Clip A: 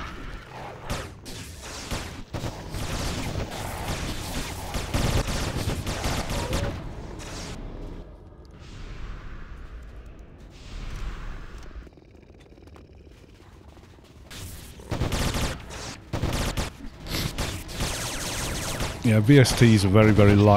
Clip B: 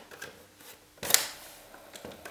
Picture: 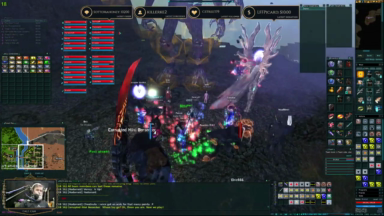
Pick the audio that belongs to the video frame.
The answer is A